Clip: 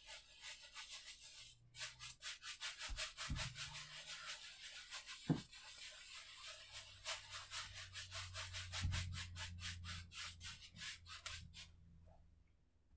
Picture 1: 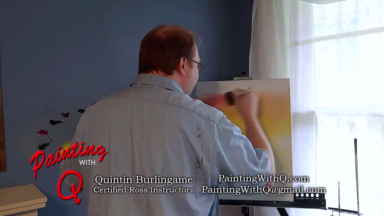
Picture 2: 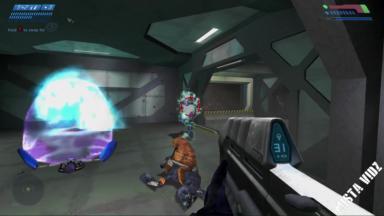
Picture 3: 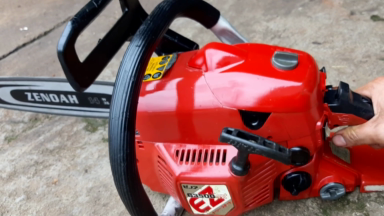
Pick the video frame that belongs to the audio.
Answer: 1